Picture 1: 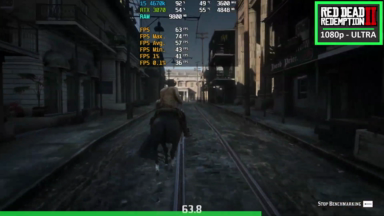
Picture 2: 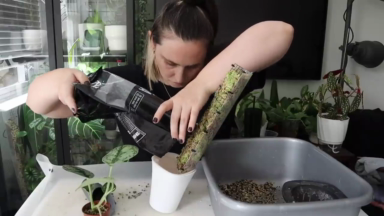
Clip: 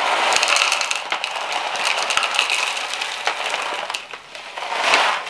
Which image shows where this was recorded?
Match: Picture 2